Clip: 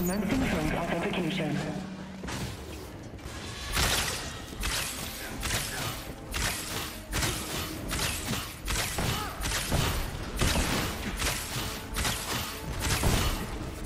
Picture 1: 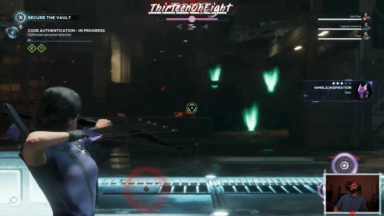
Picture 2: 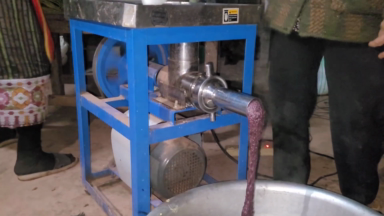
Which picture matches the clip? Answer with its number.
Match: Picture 1